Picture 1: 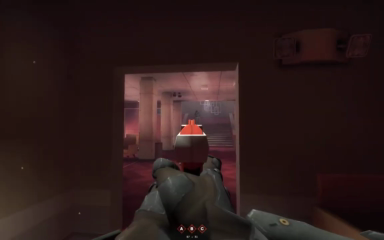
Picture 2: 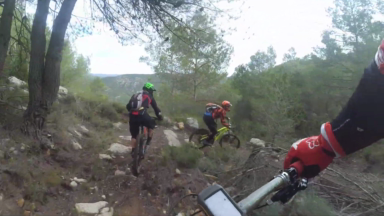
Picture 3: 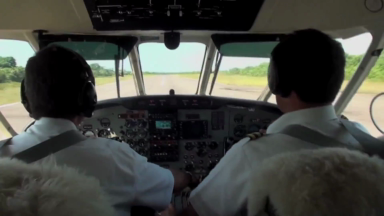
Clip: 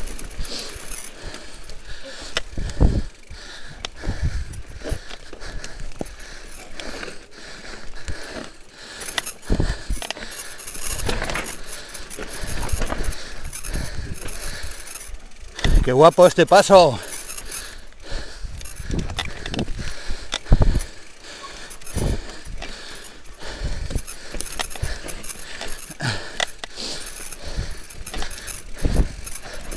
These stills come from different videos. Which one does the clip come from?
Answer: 2